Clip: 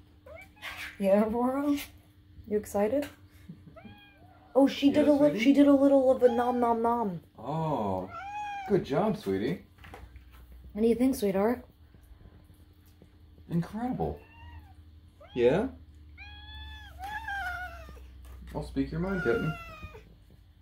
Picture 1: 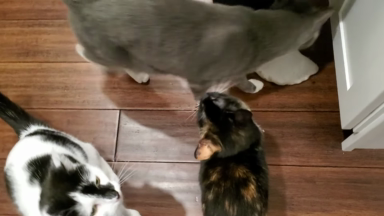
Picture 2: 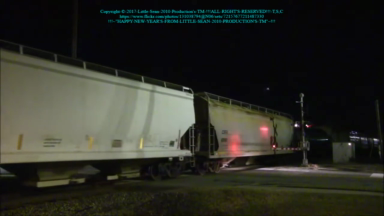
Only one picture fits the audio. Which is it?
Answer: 1